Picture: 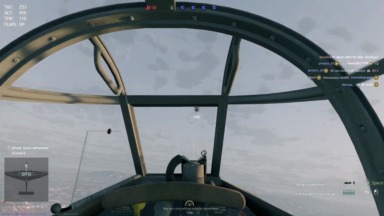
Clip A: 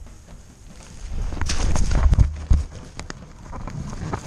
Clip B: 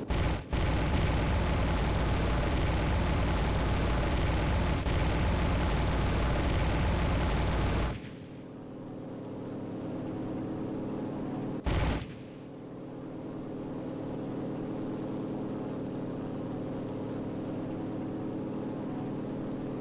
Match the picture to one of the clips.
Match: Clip B